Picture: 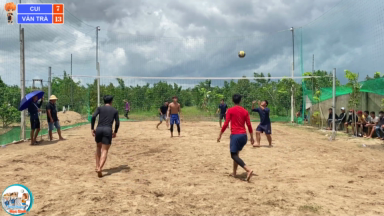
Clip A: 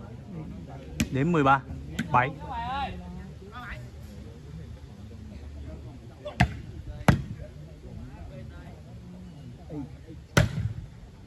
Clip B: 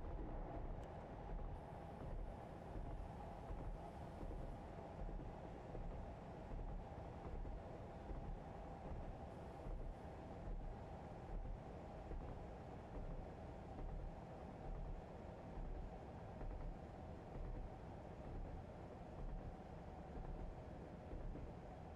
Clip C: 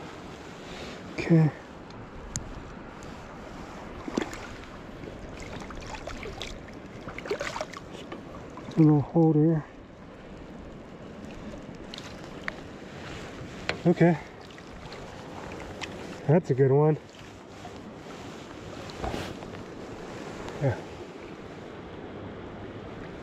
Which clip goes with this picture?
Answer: A